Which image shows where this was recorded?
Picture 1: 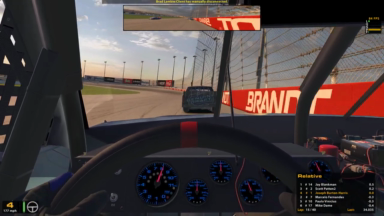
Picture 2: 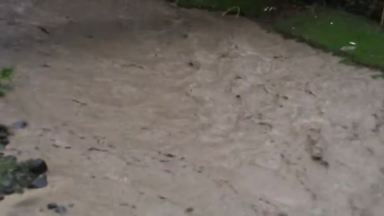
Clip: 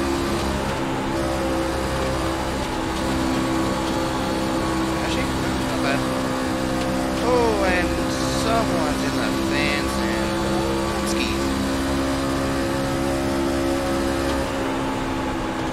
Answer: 1